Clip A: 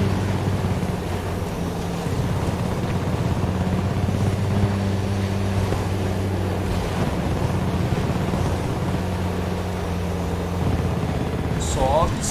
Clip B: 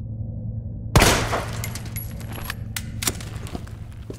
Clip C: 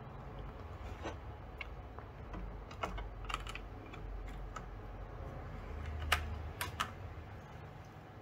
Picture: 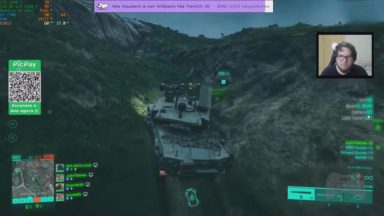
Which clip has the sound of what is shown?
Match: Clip A